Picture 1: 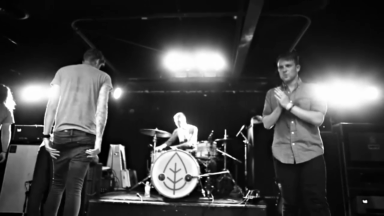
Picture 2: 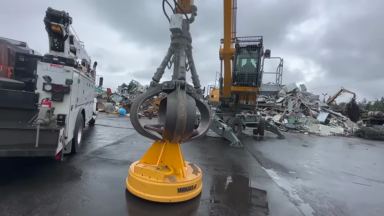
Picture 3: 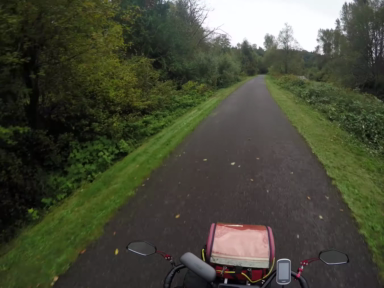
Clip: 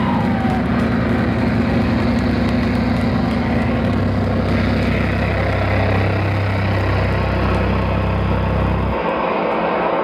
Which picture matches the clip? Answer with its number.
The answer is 1